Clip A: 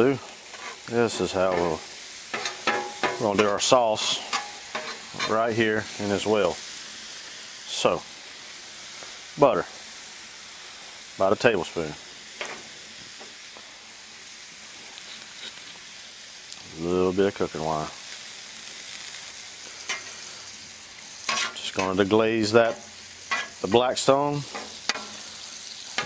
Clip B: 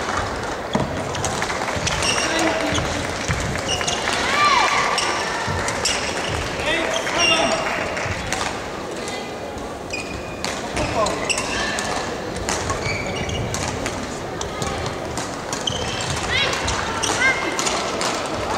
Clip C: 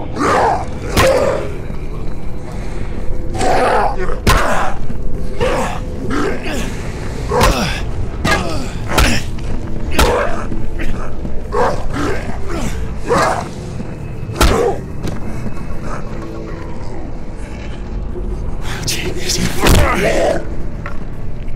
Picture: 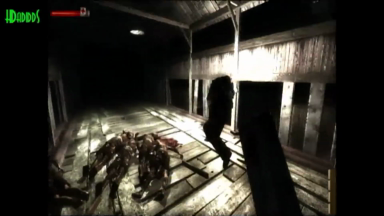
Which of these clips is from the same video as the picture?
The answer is C